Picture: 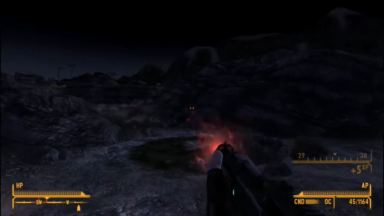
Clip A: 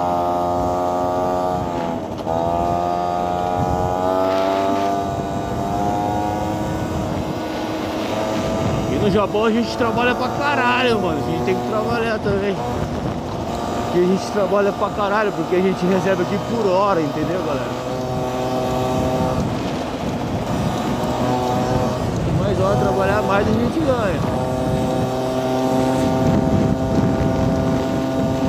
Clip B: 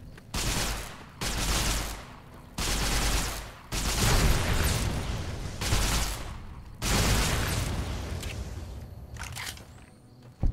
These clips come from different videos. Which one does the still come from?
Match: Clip B